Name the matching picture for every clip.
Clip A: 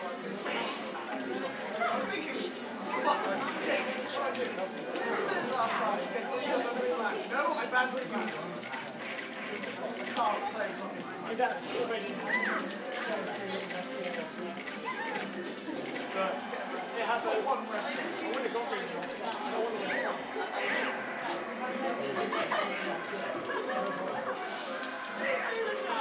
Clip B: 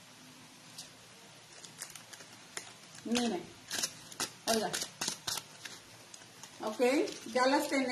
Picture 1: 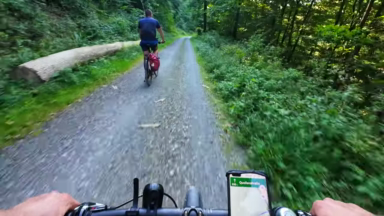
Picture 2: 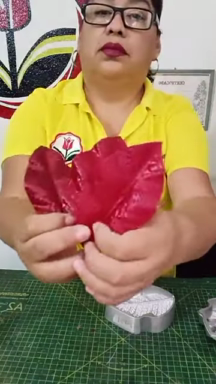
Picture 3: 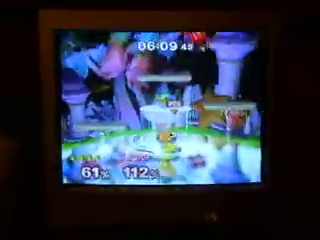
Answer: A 3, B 2